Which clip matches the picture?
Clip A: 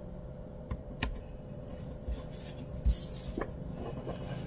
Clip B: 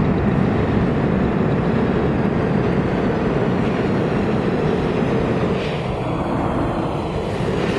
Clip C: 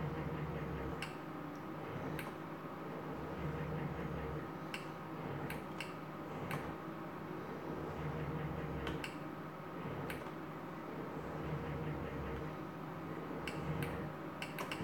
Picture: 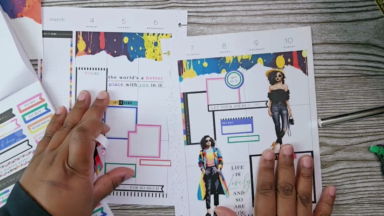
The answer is A